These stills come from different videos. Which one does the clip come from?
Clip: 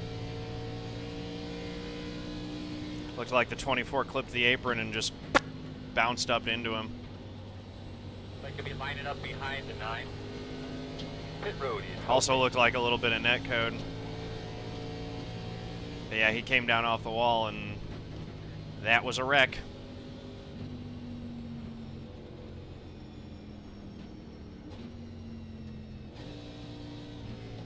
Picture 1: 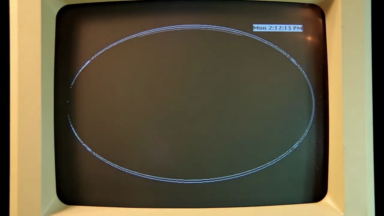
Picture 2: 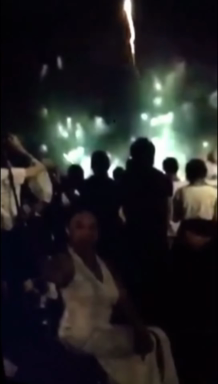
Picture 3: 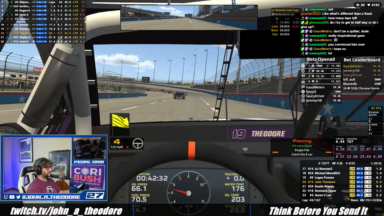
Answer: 3